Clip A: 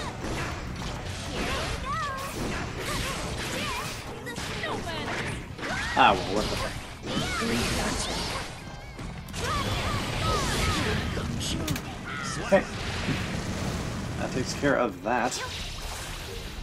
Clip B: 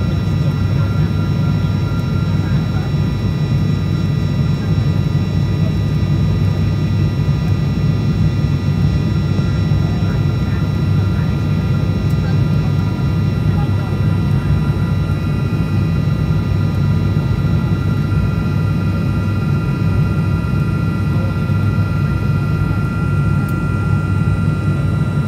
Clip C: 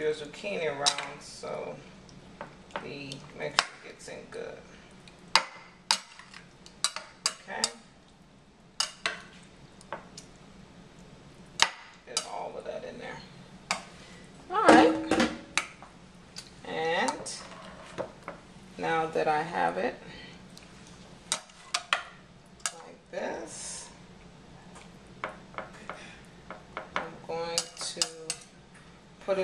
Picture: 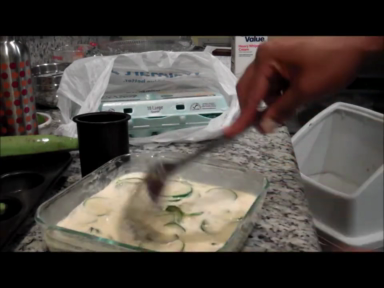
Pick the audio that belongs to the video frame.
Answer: C